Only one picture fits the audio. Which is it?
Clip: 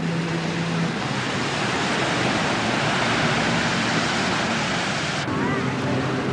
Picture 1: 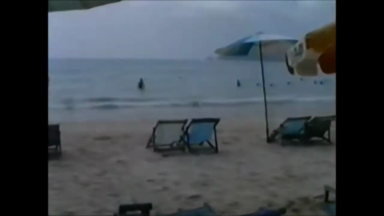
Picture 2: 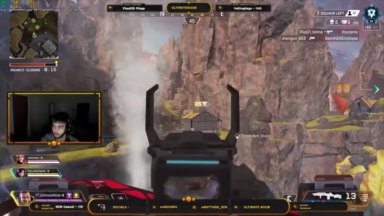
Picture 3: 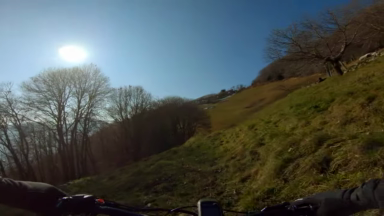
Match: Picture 1